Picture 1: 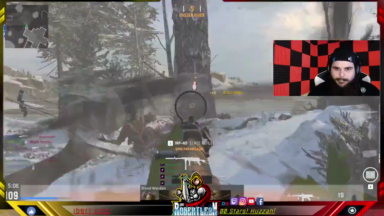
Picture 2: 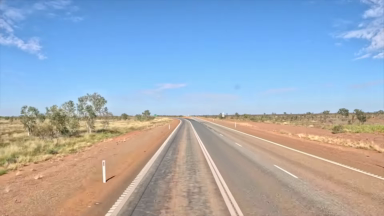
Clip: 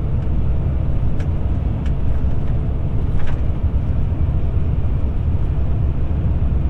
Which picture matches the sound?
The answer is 2